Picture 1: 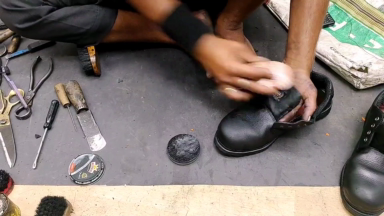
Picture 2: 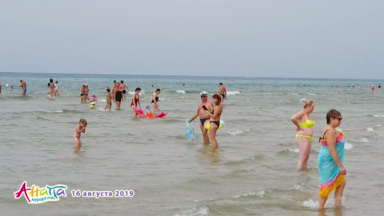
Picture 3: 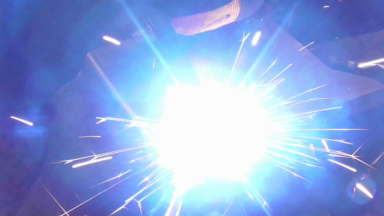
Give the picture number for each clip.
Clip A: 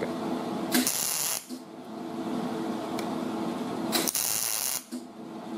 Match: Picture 3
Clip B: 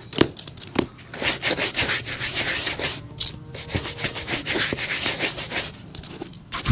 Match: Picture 1